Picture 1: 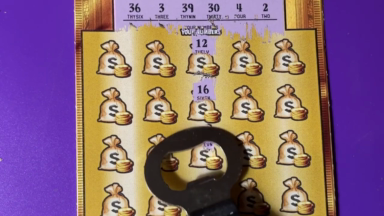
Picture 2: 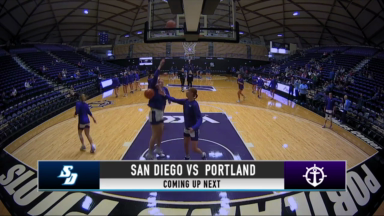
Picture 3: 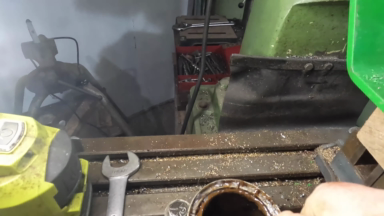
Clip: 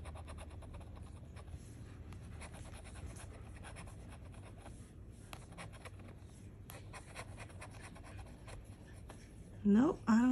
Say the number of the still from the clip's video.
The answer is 1